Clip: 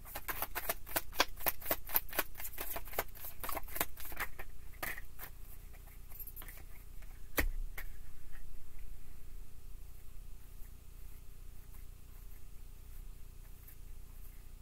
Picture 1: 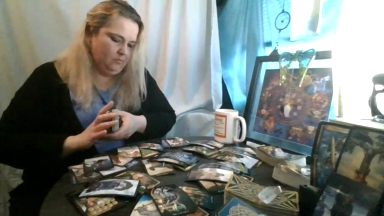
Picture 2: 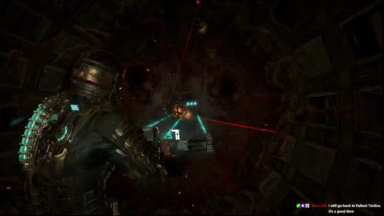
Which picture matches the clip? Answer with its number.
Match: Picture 1